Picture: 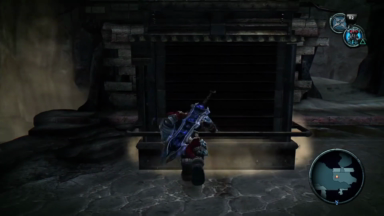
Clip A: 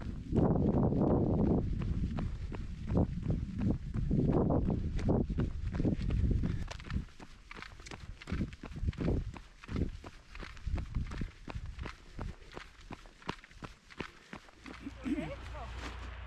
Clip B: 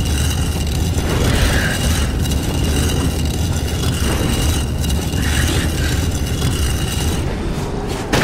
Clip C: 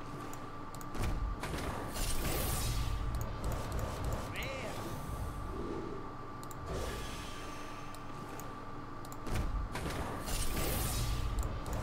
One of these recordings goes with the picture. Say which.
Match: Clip B